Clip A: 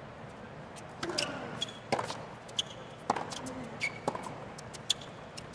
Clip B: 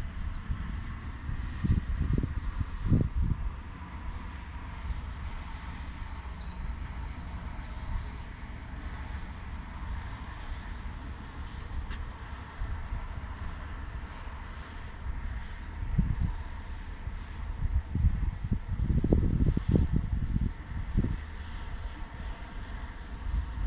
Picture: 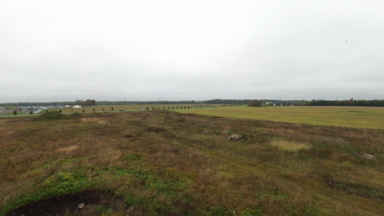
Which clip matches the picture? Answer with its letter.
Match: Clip B